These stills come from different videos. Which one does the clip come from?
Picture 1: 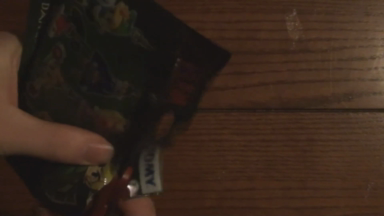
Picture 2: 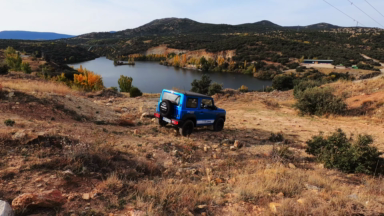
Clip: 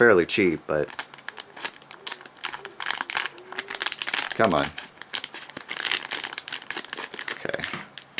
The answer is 1